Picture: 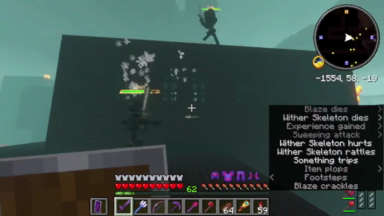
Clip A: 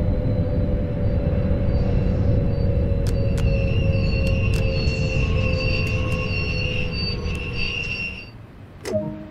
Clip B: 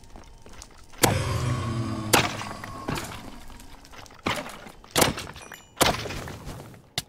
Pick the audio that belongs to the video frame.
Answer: B